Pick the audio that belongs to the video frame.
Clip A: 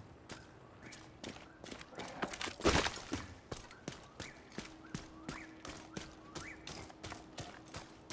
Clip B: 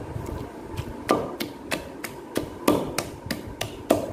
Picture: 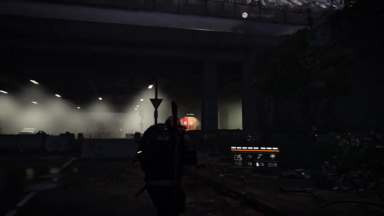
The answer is A